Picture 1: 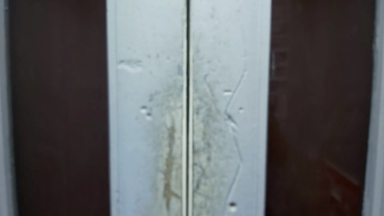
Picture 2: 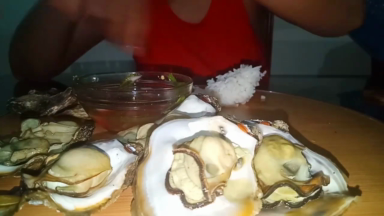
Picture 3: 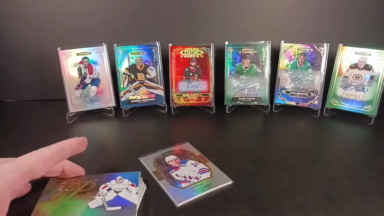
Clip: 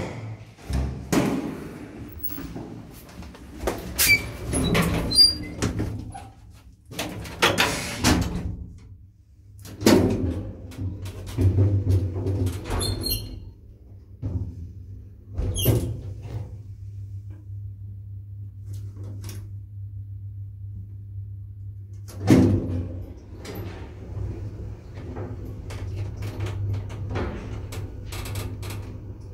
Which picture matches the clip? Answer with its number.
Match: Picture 1